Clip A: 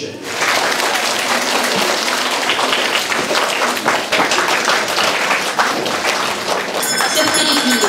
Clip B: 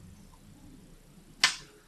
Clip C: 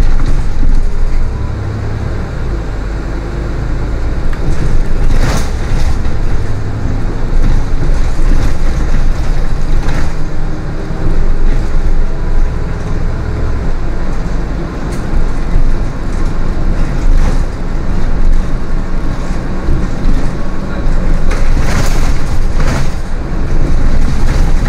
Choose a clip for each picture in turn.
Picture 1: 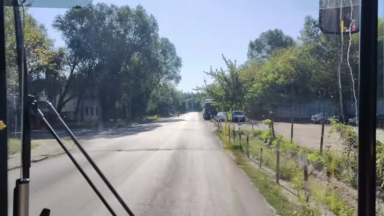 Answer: C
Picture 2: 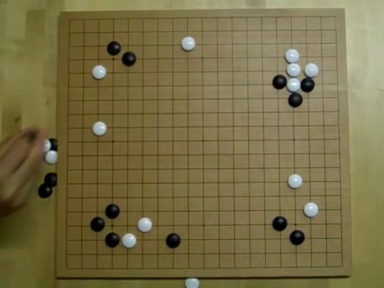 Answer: B